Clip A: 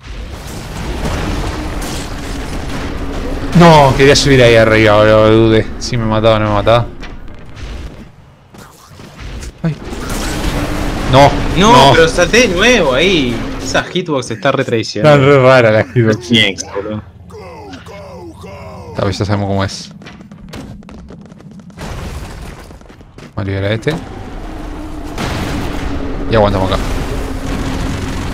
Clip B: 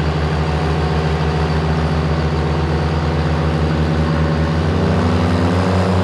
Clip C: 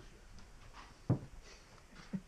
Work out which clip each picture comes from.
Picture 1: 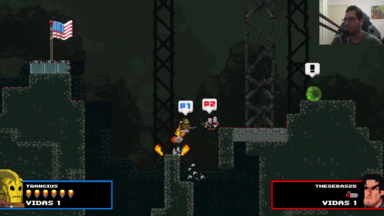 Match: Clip A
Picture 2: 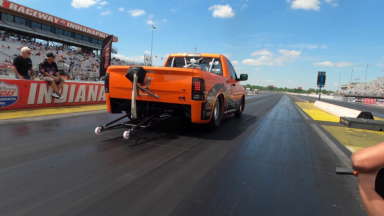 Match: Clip B